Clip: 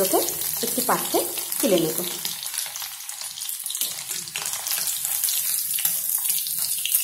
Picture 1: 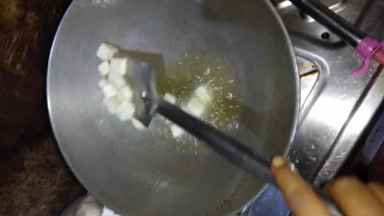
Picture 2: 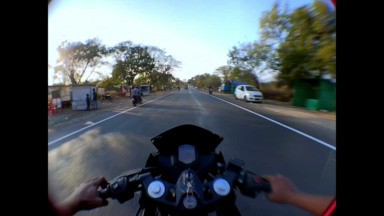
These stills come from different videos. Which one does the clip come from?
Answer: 1